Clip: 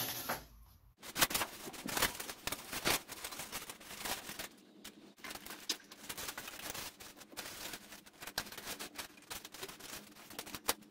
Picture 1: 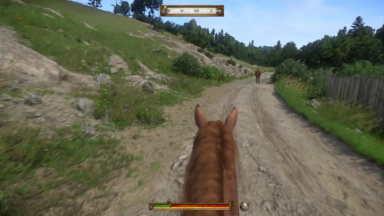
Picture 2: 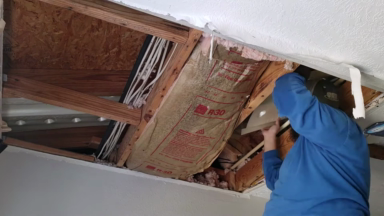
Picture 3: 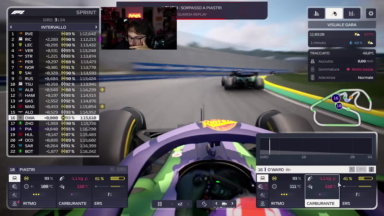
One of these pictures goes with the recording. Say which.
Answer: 2